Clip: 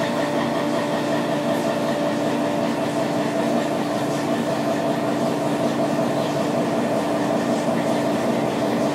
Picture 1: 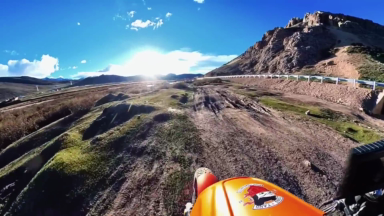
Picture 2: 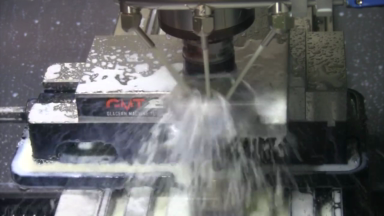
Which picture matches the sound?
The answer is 2